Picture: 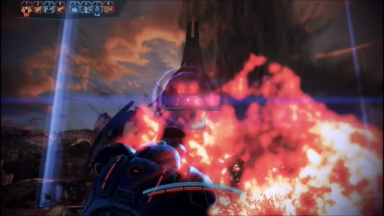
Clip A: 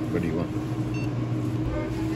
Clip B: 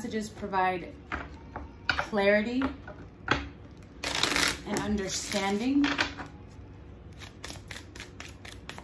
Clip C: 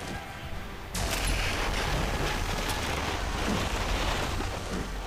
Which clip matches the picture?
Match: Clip C